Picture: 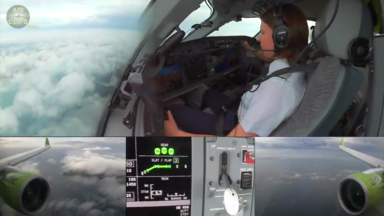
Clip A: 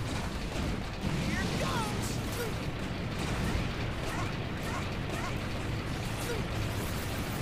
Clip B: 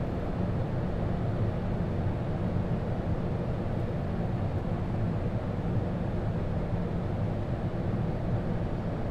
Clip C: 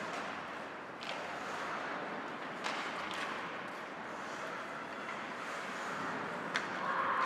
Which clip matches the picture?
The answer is B